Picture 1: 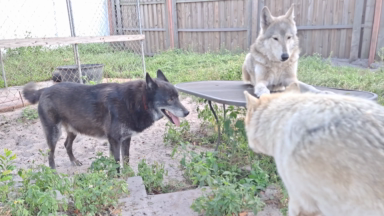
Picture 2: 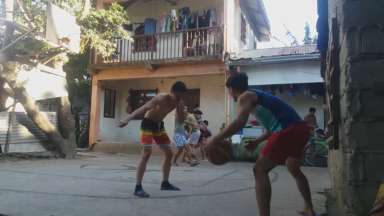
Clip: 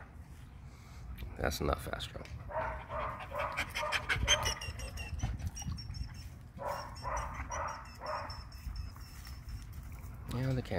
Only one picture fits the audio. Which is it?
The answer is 1